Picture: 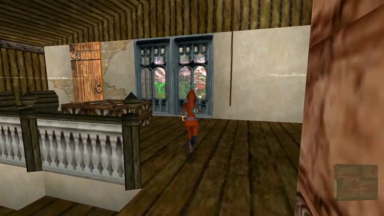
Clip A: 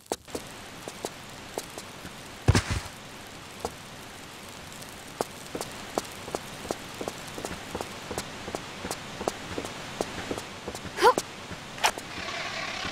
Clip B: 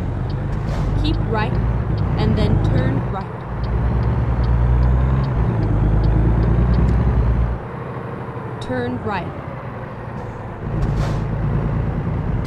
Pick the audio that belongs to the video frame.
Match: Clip A